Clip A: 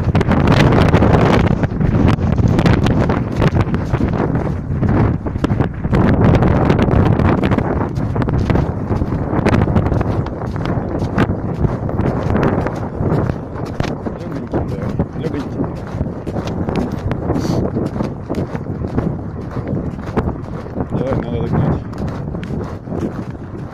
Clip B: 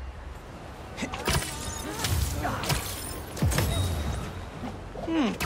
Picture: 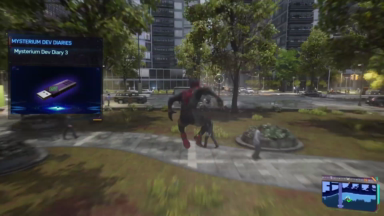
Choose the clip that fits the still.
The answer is B